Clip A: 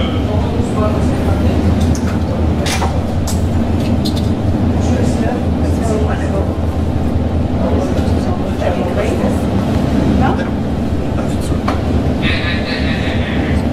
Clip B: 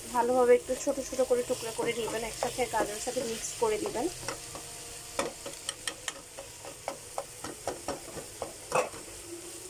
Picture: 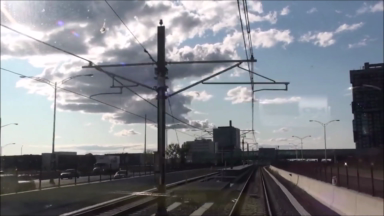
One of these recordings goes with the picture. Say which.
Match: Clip A